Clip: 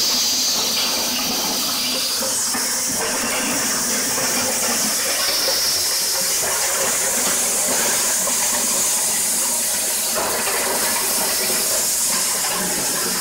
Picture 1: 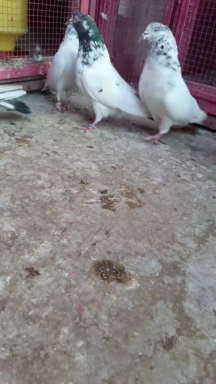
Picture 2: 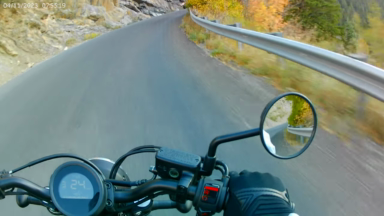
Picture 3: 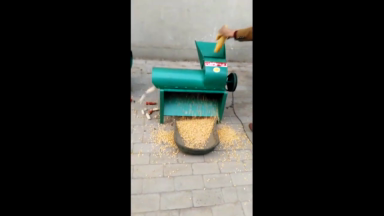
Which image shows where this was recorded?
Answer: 3